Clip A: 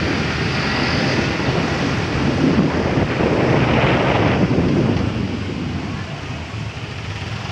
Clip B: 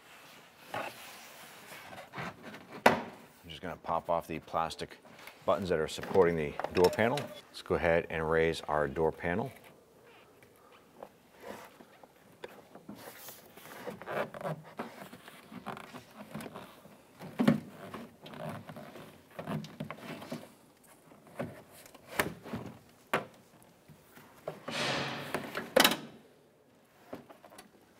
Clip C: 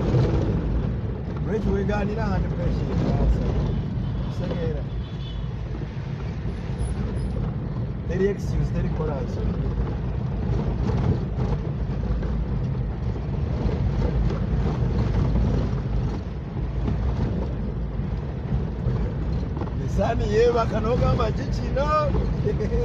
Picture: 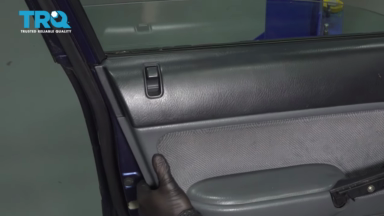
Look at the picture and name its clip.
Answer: B